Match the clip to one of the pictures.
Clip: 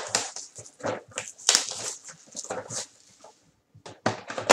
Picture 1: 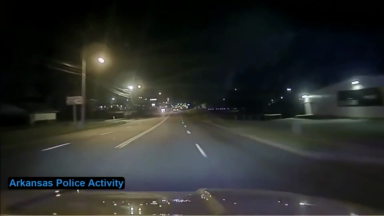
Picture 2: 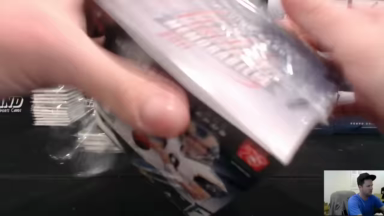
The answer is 2